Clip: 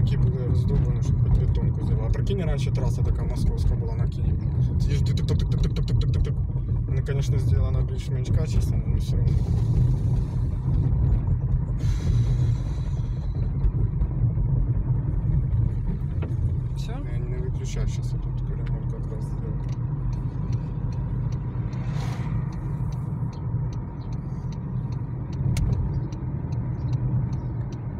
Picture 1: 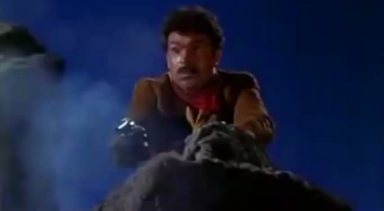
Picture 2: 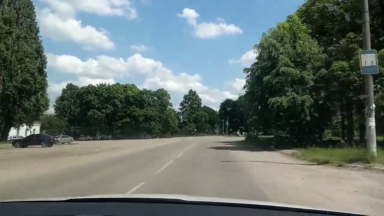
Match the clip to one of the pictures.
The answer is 2